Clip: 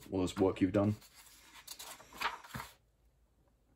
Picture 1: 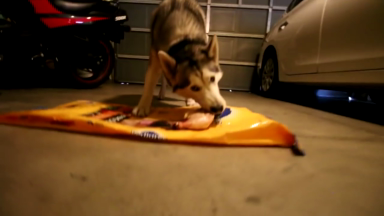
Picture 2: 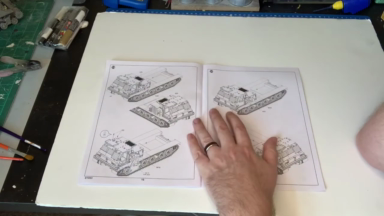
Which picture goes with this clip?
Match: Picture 2